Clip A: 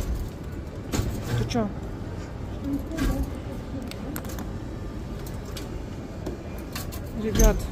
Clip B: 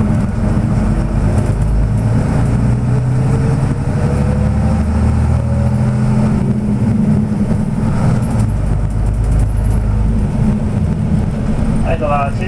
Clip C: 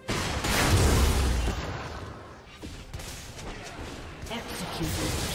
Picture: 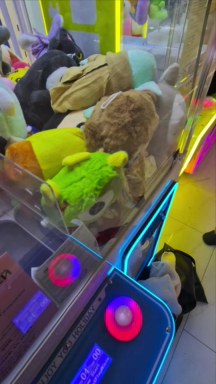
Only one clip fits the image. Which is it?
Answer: A